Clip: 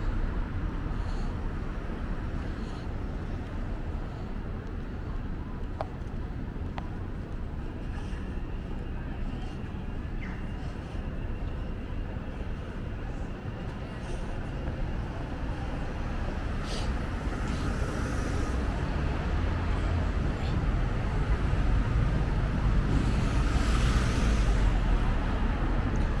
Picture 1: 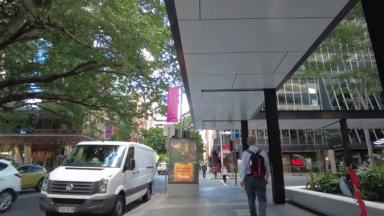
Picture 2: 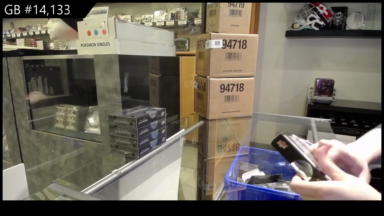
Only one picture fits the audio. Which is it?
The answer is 1